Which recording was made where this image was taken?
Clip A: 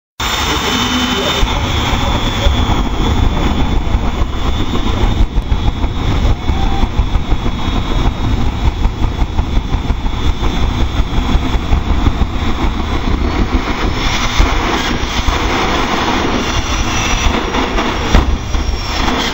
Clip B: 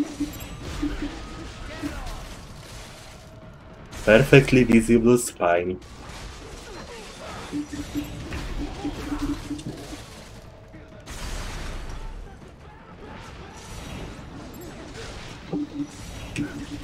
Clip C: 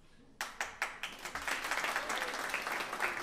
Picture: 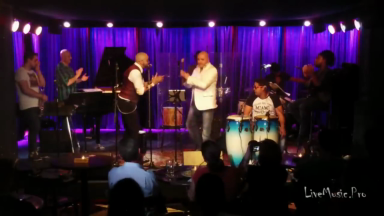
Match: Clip C